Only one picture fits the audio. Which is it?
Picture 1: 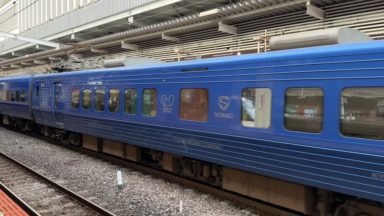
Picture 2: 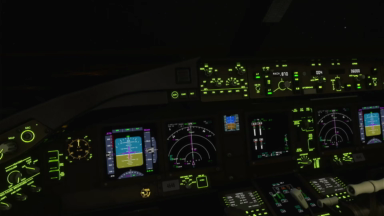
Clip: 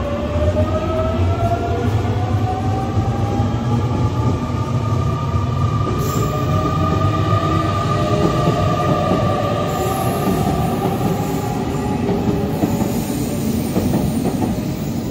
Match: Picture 1